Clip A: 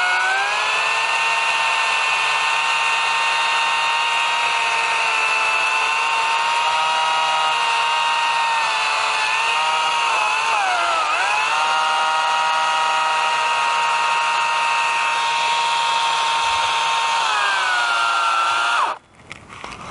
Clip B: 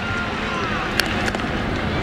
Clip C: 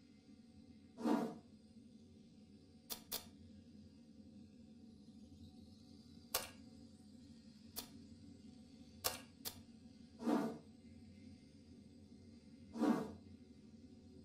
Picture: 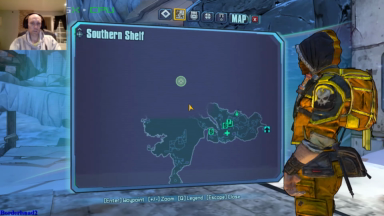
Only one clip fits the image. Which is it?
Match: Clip C